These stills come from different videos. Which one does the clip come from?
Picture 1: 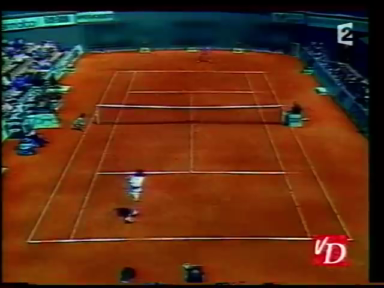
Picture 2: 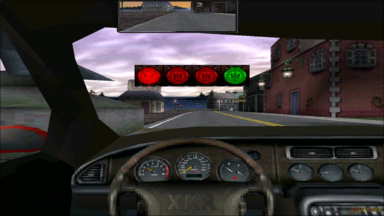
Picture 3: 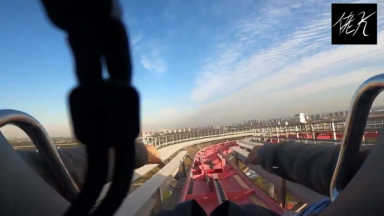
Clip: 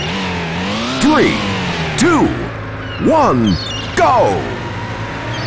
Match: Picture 2